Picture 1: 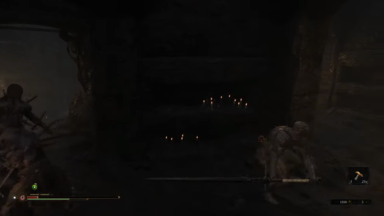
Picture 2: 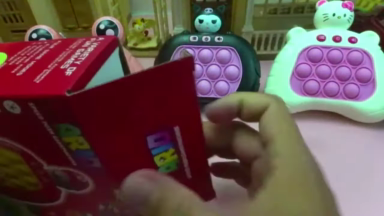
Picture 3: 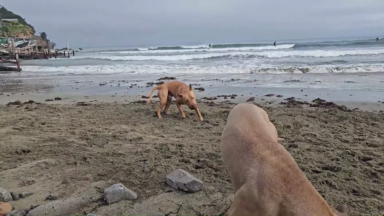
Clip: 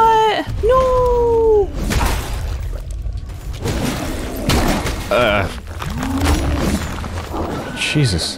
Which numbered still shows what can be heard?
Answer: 1